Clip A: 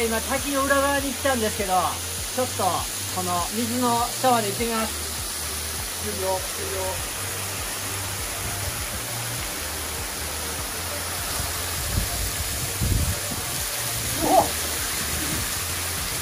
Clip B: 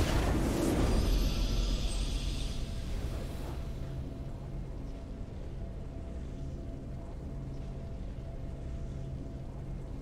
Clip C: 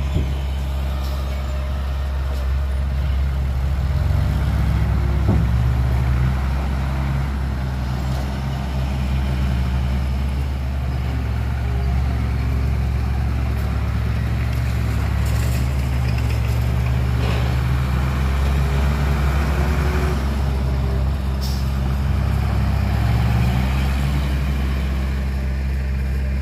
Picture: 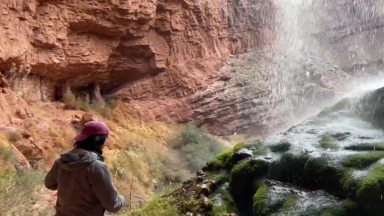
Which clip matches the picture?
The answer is A